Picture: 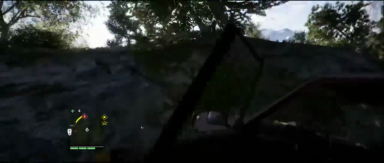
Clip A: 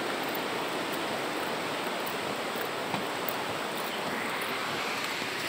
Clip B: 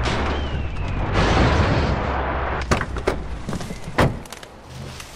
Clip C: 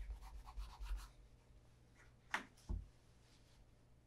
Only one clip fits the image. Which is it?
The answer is B